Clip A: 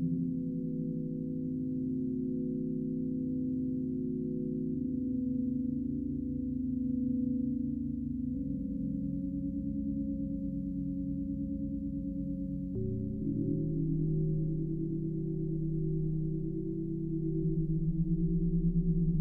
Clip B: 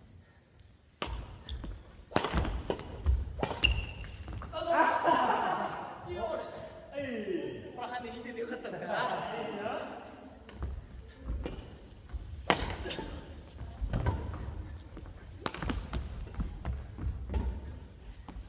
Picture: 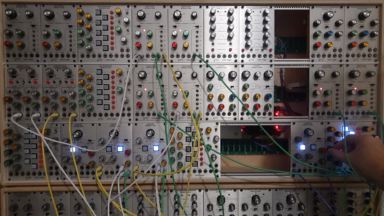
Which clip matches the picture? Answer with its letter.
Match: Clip A